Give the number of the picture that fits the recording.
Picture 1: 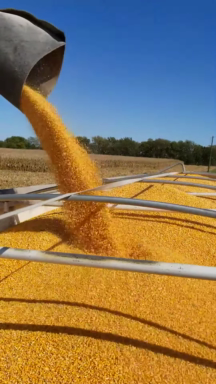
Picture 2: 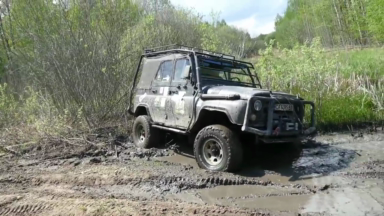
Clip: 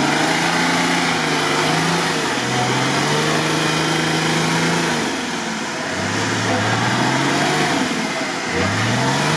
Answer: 2